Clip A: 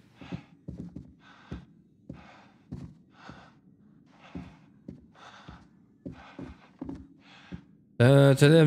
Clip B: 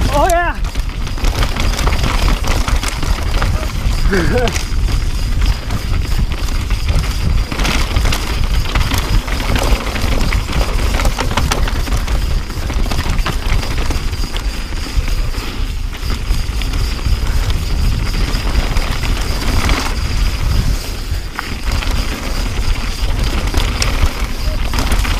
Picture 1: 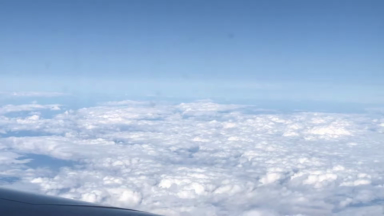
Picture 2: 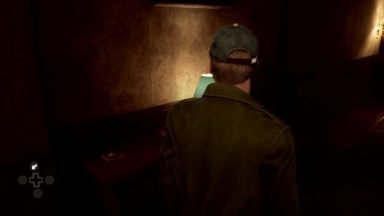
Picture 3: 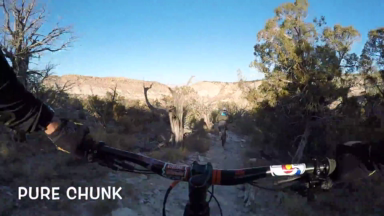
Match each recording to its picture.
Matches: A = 2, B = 3